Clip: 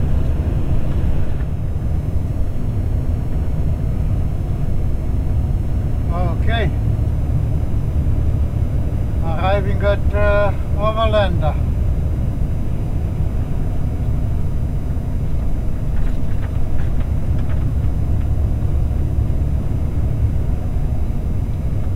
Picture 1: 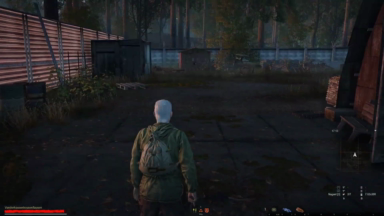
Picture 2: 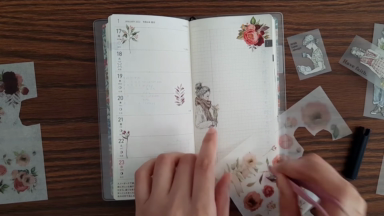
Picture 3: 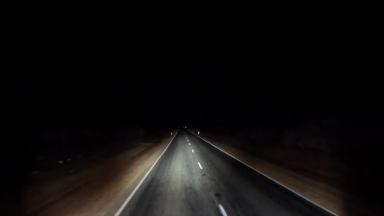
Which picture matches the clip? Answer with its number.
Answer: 3